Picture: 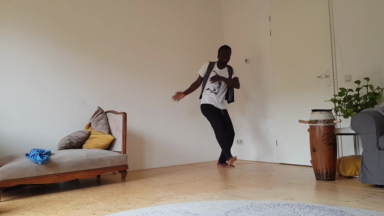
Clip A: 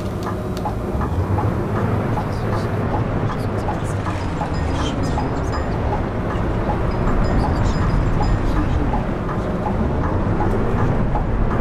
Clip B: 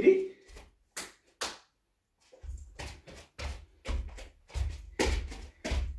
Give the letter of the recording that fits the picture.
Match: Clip B